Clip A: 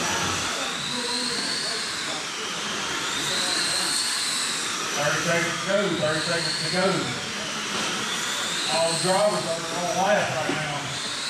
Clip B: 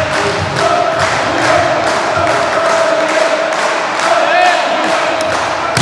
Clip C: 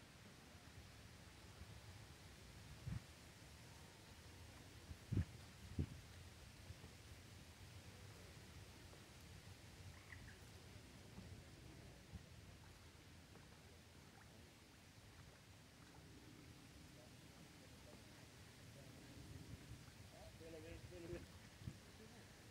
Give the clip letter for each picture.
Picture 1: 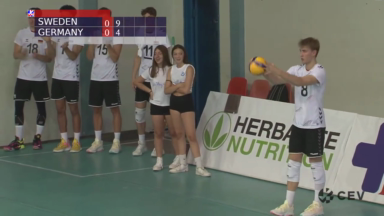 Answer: B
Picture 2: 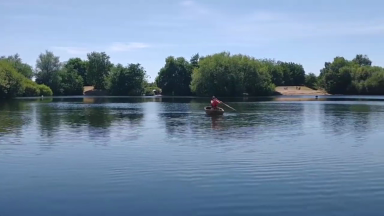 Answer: C